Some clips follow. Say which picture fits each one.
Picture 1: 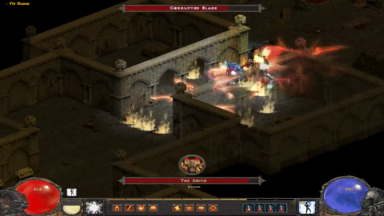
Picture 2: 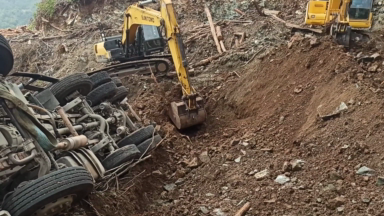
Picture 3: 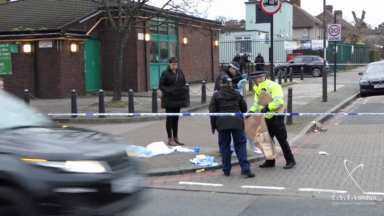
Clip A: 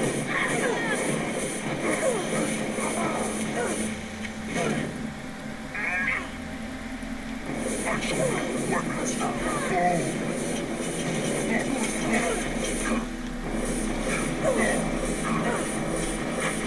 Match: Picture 1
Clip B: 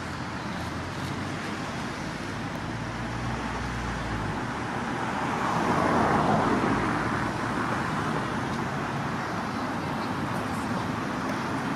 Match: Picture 3